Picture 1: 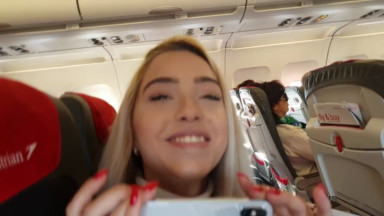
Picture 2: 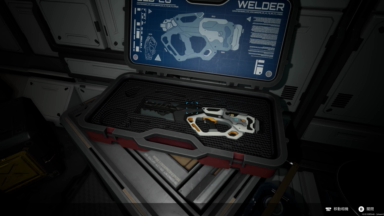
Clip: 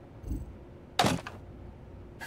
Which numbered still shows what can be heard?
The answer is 2